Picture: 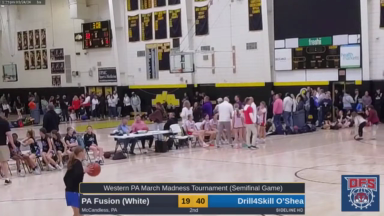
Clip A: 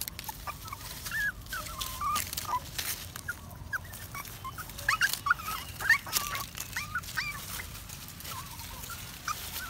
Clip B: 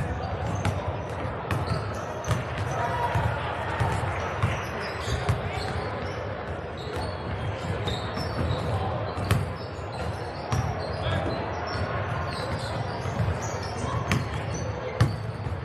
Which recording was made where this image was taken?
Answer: B